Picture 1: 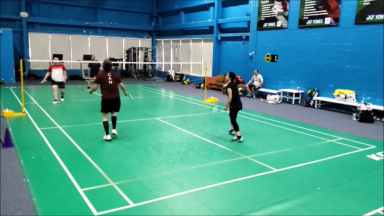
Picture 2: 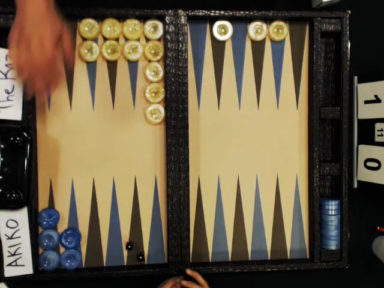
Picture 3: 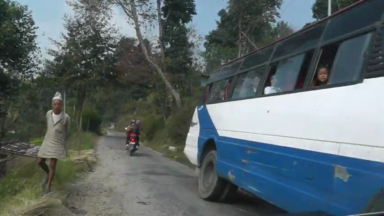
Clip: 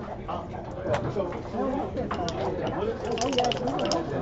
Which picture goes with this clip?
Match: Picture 2